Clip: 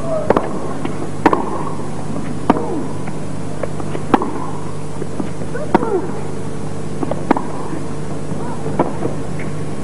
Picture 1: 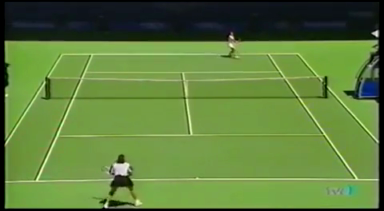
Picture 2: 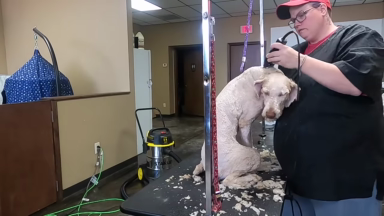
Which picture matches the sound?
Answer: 1